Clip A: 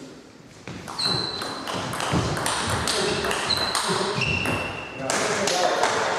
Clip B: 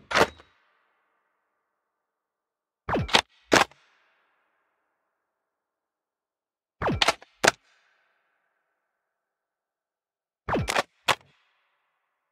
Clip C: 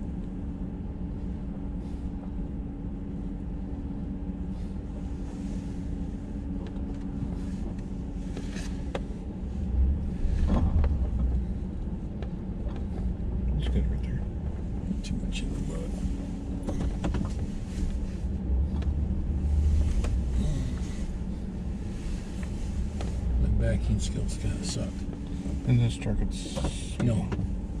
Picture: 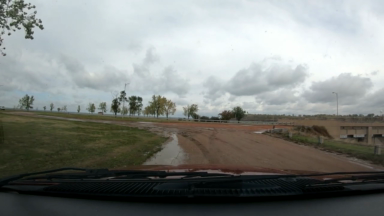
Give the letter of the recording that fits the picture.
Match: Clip C